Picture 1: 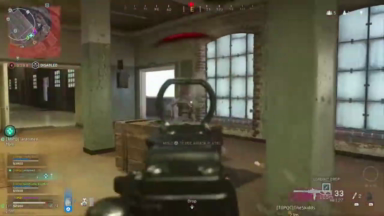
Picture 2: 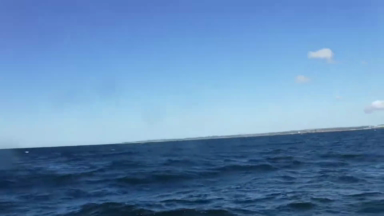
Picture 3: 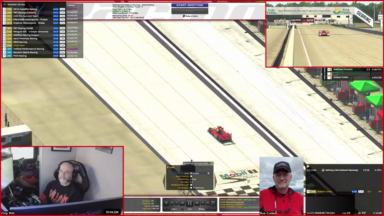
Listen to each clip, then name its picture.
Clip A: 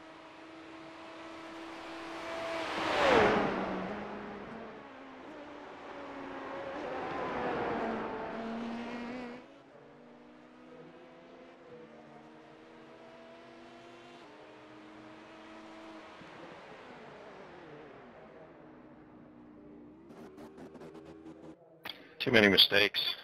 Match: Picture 3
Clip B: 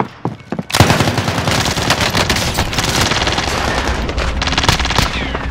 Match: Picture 1